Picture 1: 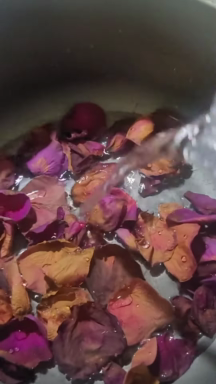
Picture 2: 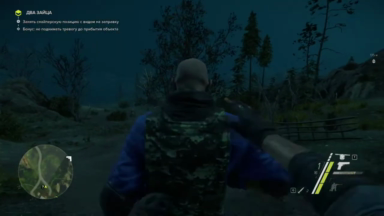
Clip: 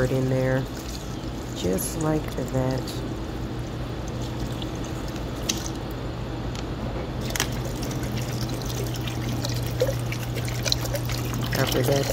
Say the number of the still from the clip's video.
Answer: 1